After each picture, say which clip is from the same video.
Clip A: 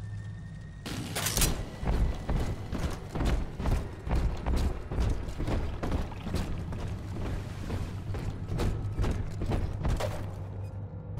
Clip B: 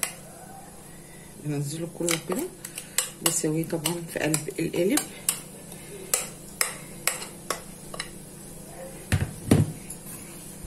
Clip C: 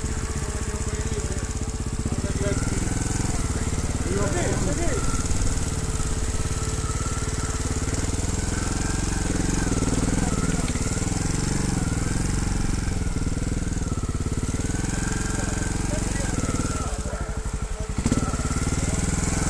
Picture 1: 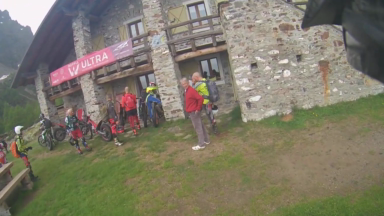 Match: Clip C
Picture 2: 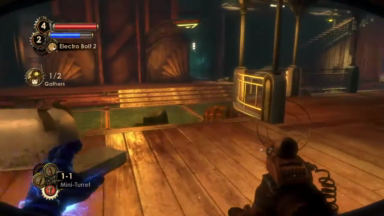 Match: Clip A